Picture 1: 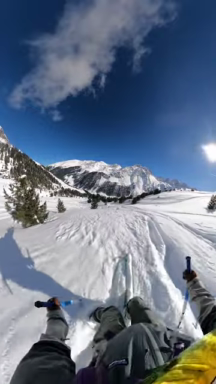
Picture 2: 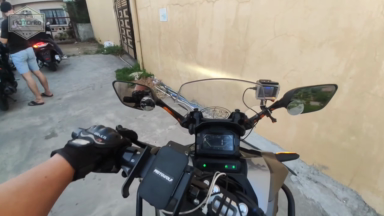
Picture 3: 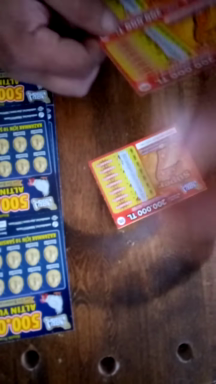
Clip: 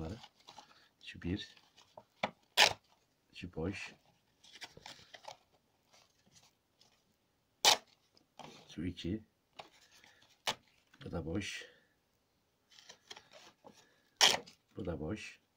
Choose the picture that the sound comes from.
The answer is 3